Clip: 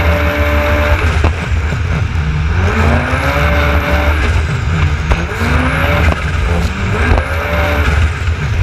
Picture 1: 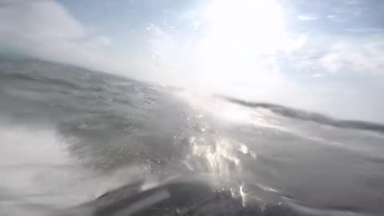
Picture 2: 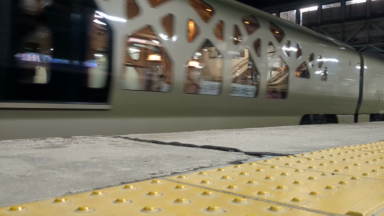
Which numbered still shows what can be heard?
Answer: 1